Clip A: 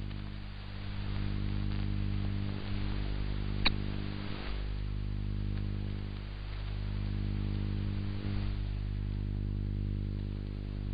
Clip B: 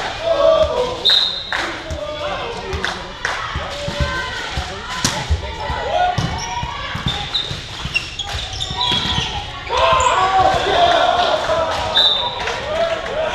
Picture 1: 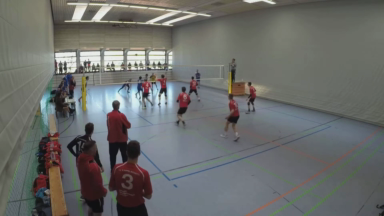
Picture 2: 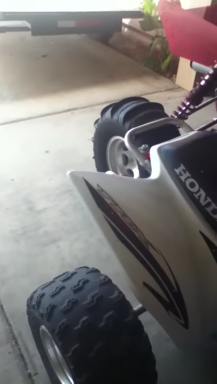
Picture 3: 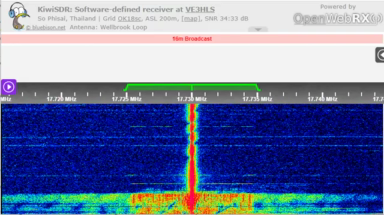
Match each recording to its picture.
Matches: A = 3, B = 1